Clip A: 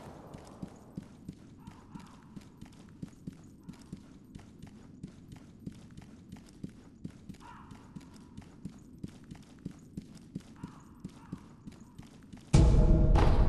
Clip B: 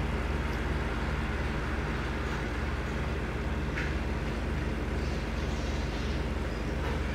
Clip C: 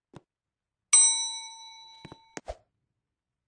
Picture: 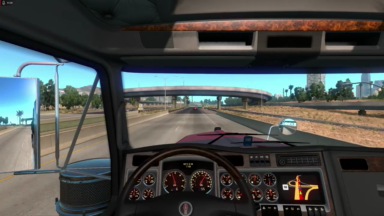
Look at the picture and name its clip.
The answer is B